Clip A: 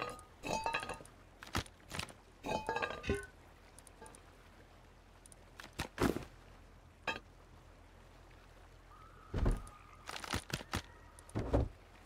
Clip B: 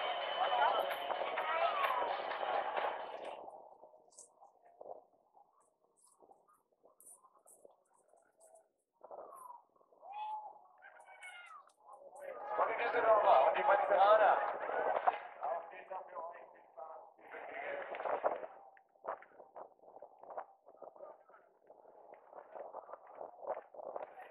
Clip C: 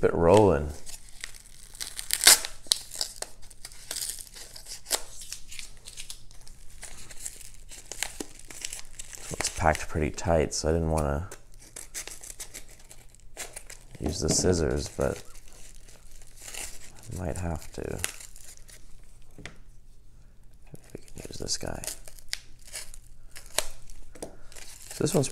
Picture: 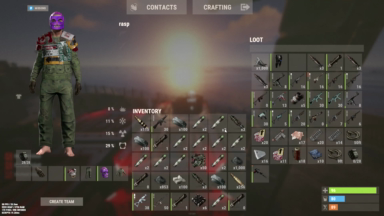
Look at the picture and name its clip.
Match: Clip A